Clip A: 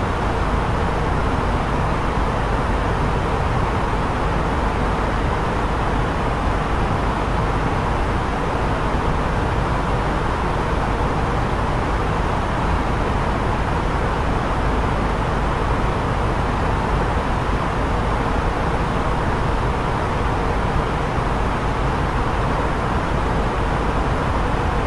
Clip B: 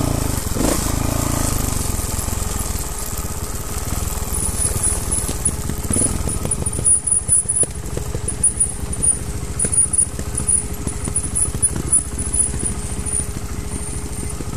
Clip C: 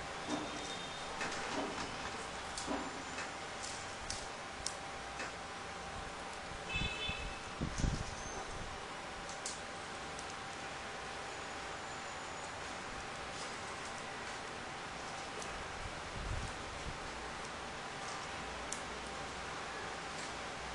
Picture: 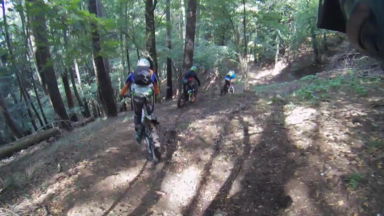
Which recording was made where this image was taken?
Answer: B